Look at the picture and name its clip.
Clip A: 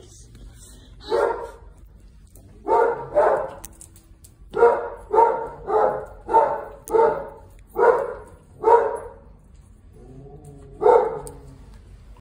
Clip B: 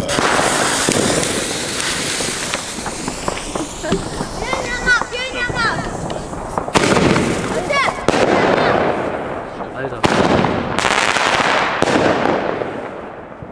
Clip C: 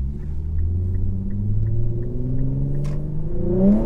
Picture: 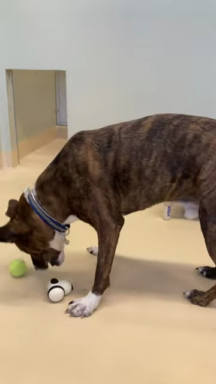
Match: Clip A